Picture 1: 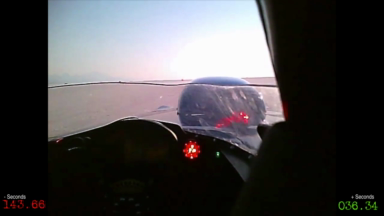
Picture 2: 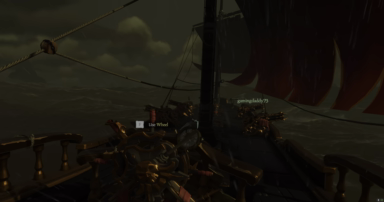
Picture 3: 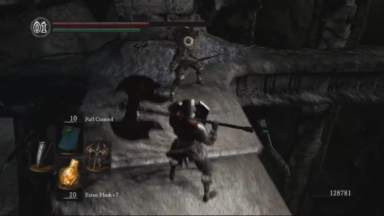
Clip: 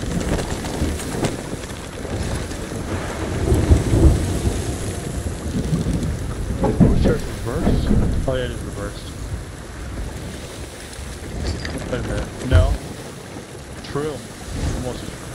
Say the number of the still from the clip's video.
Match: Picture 2